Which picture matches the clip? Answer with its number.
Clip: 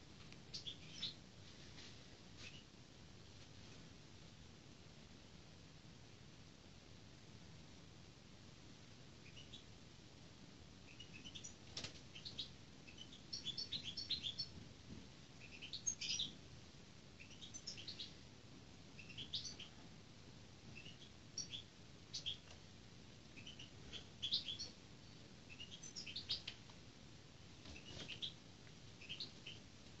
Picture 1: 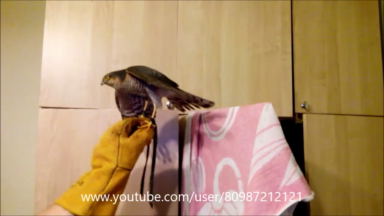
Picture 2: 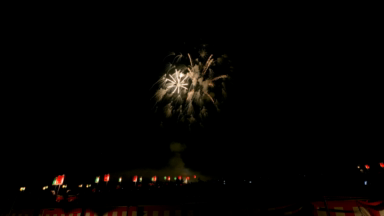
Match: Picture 1